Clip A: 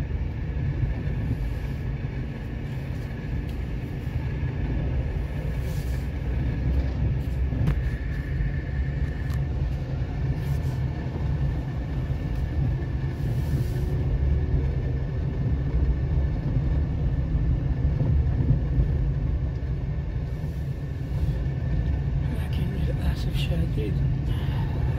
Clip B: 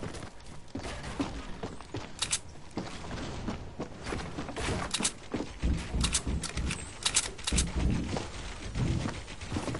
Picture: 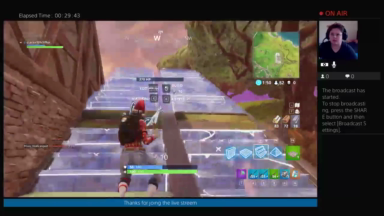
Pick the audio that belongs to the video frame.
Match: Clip B